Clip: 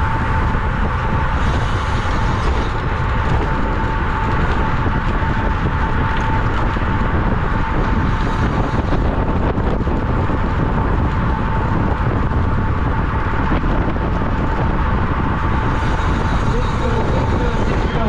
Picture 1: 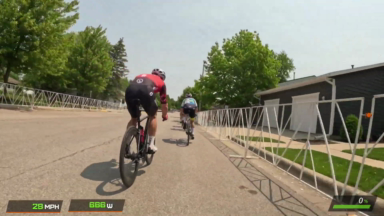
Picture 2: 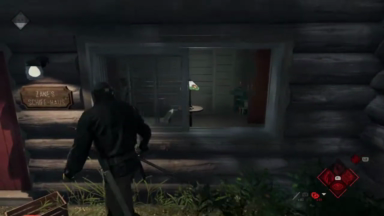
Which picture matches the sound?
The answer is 1